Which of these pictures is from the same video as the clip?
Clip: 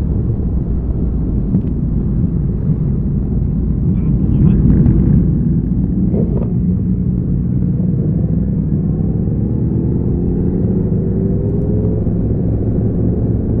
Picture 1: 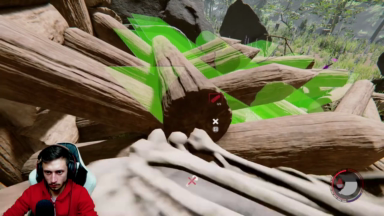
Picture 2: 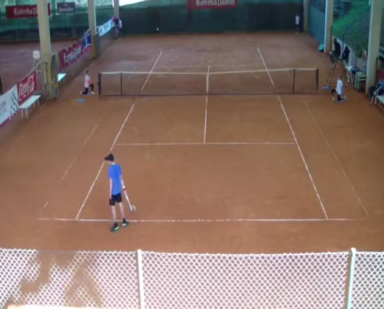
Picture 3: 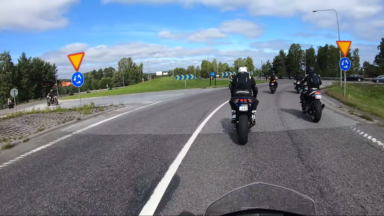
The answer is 3